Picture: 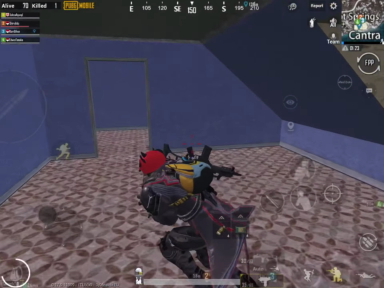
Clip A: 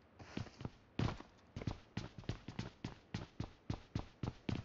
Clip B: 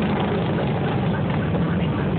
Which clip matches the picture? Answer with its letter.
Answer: A